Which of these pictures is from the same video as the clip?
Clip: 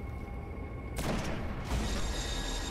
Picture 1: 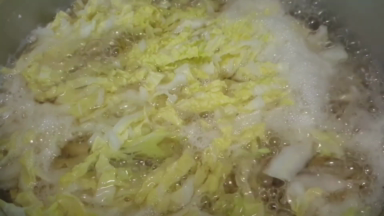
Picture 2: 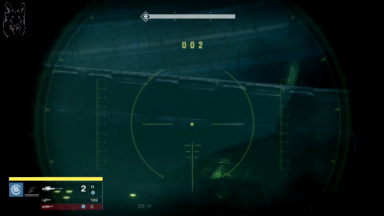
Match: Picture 2